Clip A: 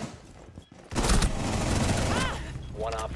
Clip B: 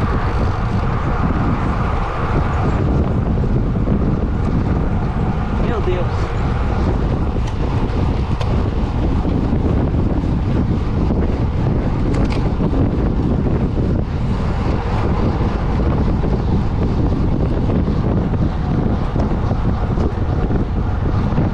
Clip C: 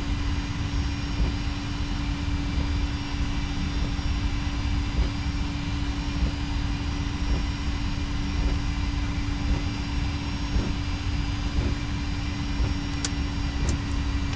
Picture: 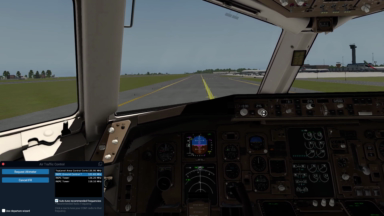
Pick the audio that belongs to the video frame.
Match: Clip C